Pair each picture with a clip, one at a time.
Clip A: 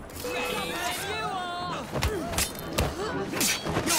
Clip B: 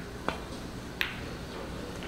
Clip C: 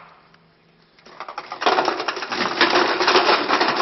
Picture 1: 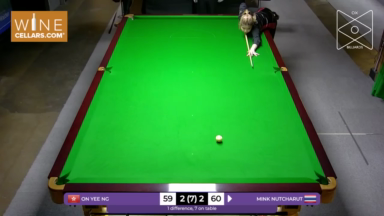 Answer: B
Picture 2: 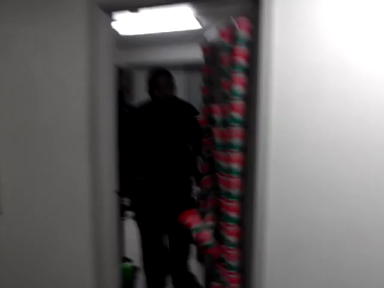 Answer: C